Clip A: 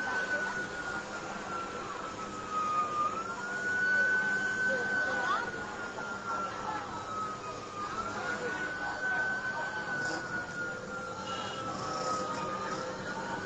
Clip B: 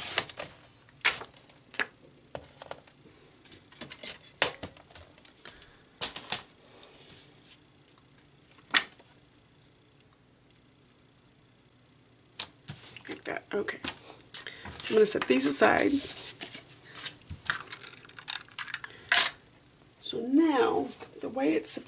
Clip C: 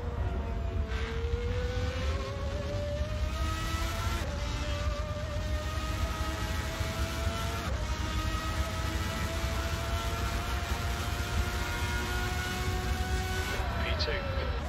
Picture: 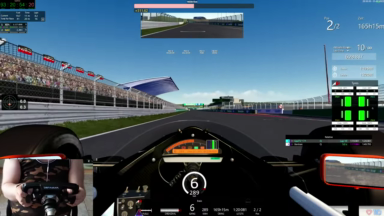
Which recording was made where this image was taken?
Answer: C